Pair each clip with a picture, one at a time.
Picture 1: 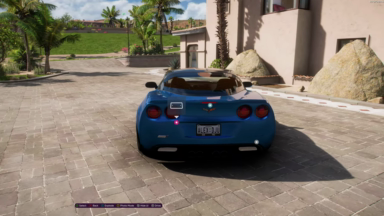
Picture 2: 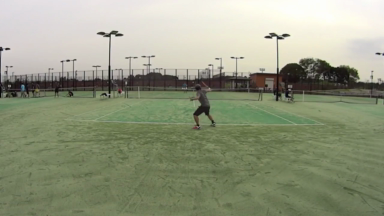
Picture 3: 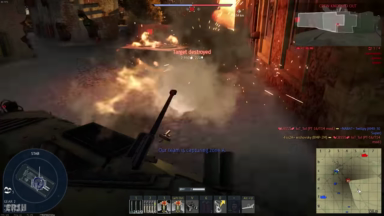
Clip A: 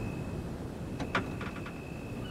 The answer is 1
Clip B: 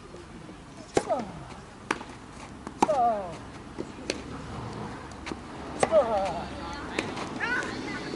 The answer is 2